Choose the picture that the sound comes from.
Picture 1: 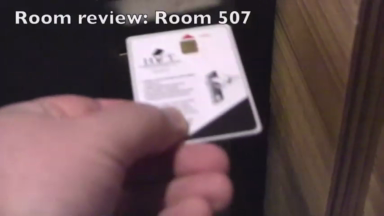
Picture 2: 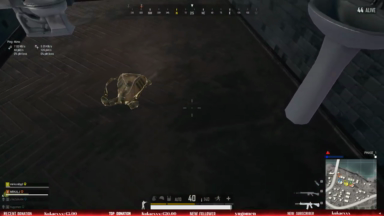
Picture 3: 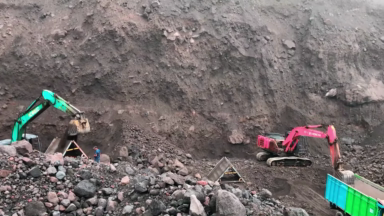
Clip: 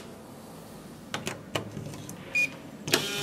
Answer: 1